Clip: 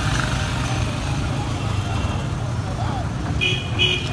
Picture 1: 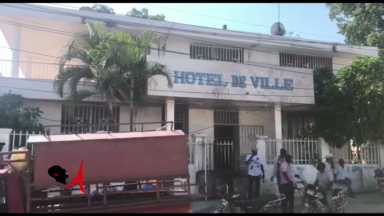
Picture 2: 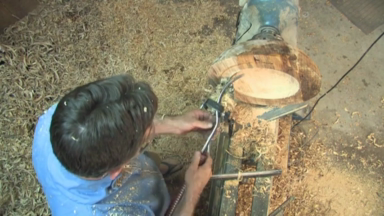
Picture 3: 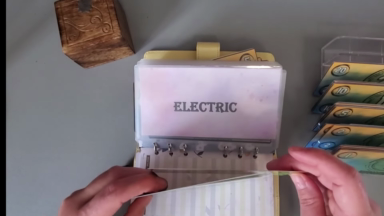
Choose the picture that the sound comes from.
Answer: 1